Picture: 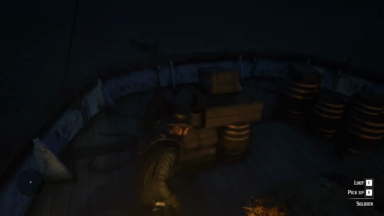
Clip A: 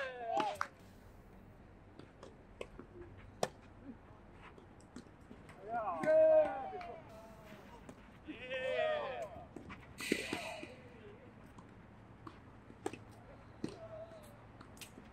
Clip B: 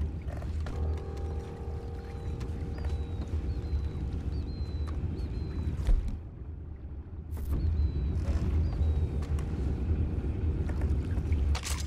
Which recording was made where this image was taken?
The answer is B